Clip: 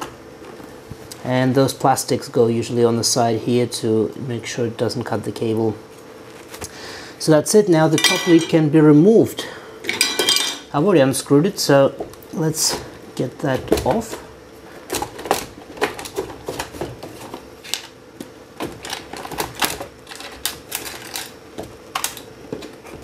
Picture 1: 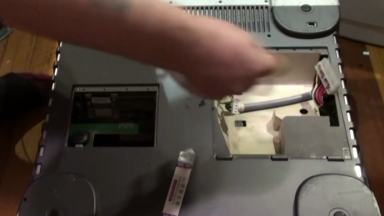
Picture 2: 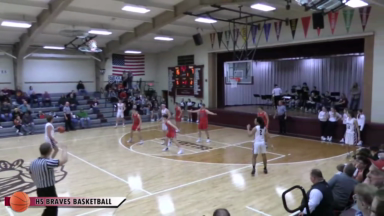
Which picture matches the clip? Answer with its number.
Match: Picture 1